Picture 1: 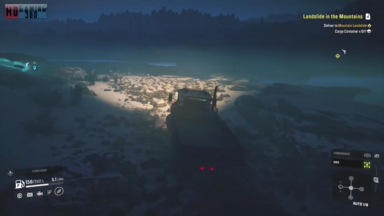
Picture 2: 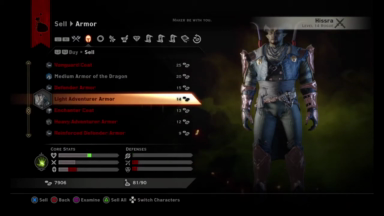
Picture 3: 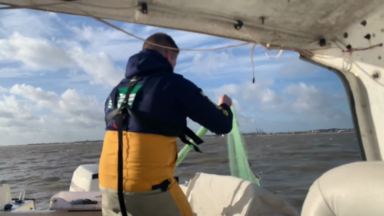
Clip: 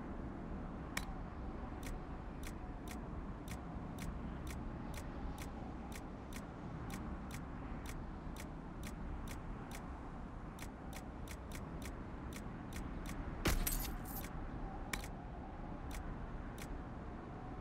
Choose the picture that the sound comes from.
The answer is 2